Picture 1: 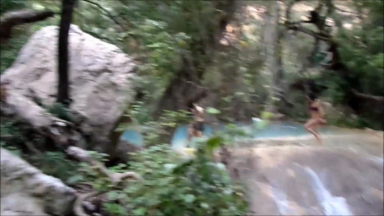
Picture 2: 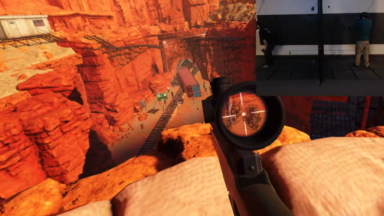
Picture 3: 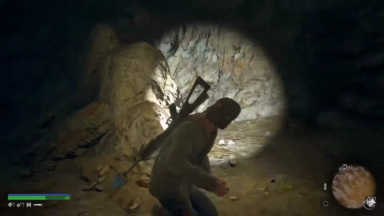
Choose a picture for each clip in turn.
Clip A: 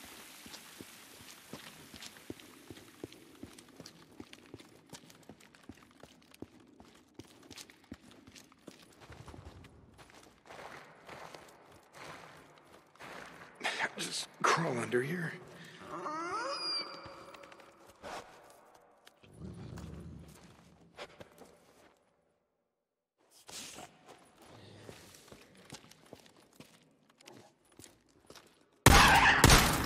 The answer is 3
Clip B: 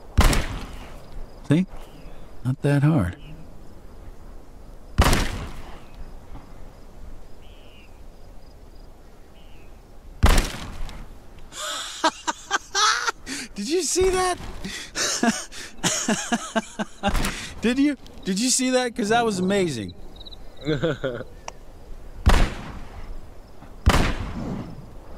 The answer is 2